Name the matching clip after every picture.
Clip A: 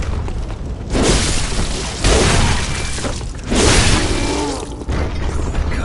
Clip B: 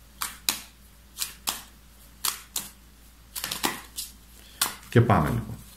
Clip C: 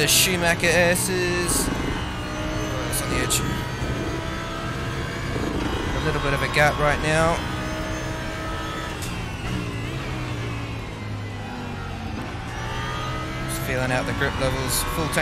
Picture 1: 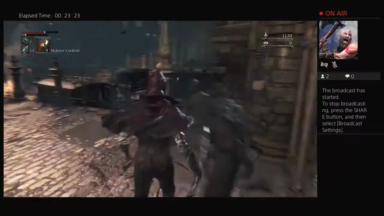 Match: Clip A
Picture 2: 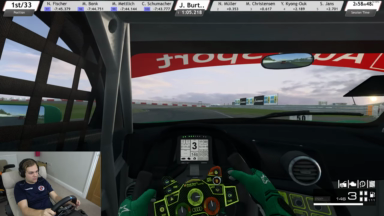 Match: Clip C